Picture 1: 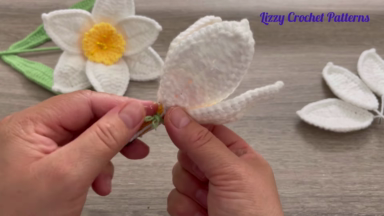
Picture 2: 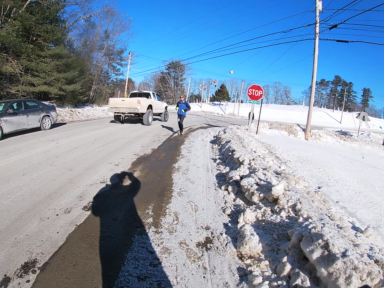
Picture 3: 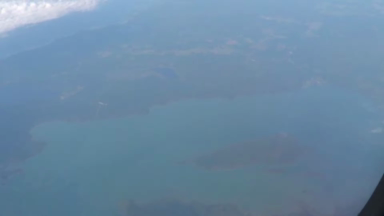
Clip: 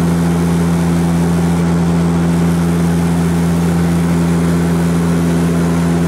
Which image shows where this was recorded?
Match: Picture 3